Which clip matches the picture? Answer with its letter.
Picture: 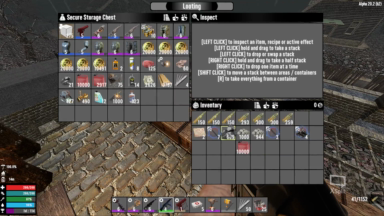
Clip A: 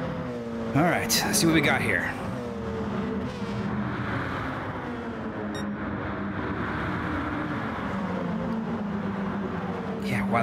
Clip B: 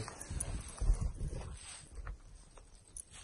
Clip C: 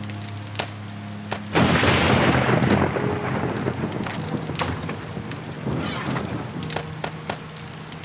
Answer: C